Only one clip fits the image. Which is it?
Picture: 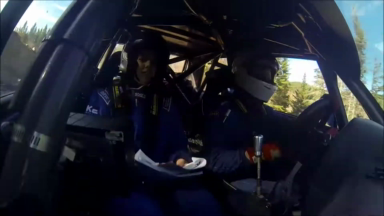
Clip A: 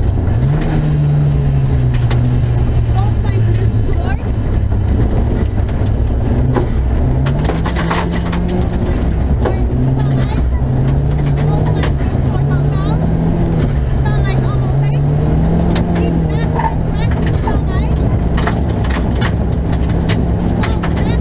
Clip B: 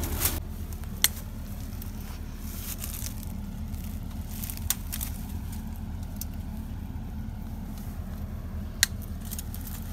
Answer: A